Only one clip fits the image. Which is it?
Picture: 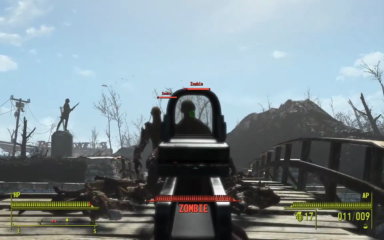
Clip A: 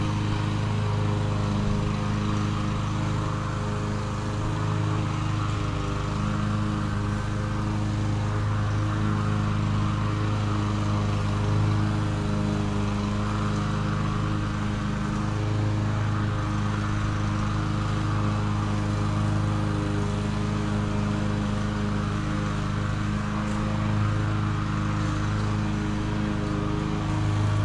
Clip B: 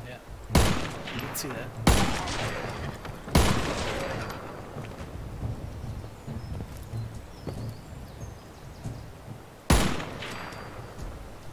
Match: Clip B